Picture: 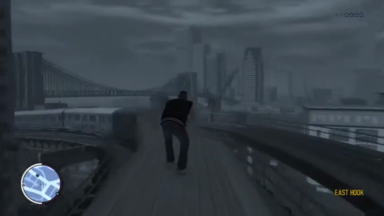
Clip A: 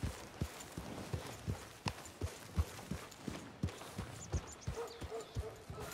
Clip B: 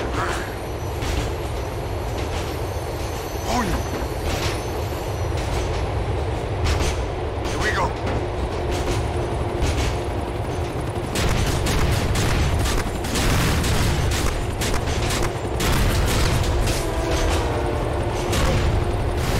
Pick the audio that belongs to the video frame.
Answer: B